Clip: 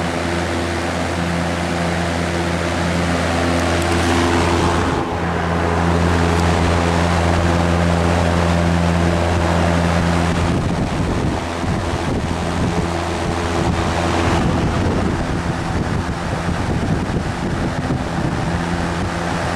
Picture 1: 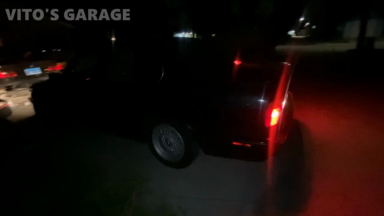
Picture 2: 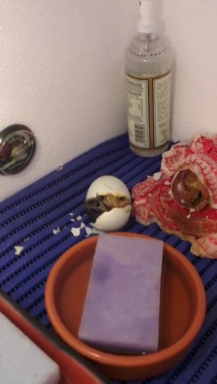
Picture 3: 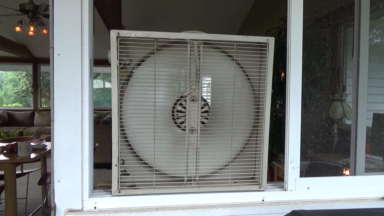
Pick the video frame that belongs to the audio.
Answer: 3